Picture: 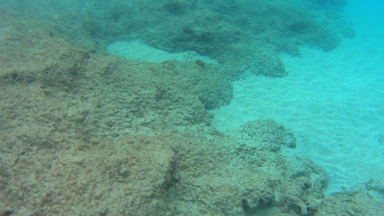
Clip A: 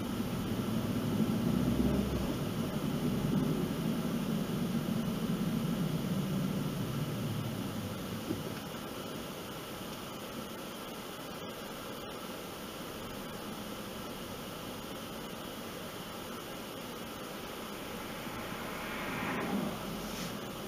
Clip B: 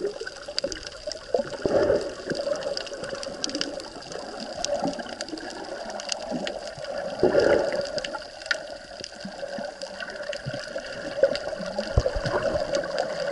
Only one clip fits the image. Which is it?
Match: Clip B